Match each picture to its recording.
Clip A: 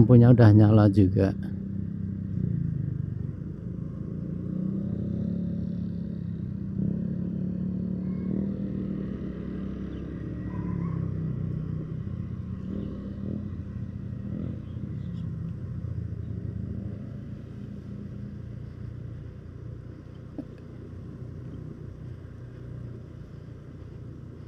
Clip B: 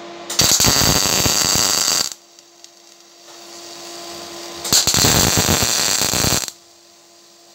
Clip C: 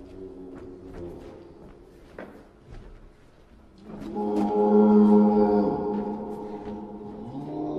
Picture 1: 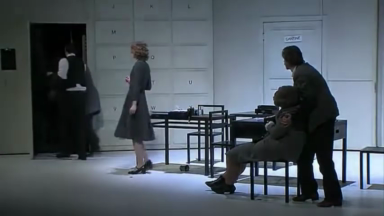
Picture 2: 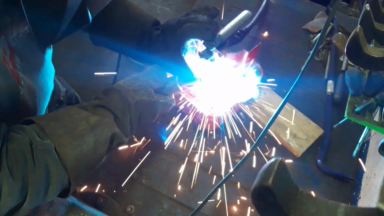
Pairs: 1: C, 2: B